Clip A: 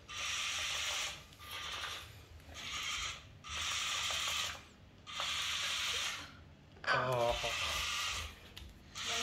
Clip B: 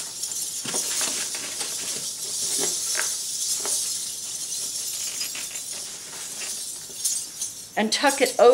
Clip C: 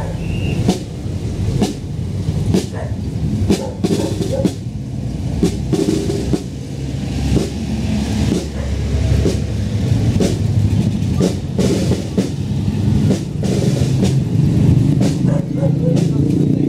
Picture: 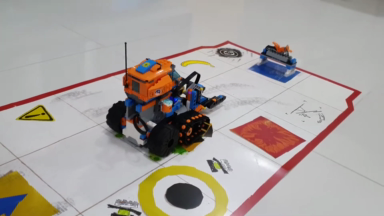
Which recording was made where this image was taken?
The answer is A